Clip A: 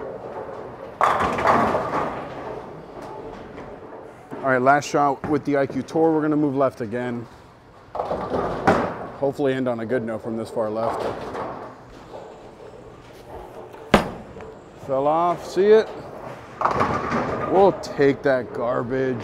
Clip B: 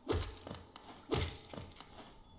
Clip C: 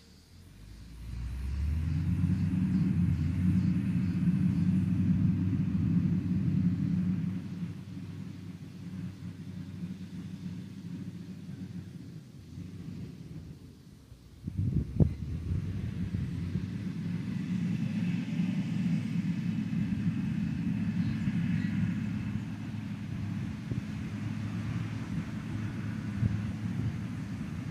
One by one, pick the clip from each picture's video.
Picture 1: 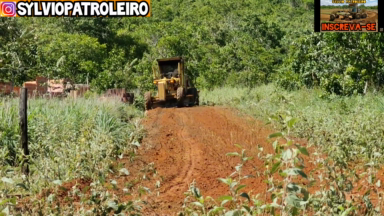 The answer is C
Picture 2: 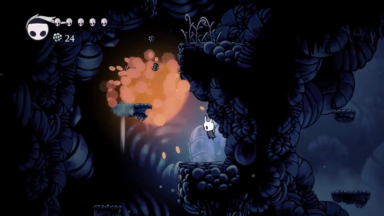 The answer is B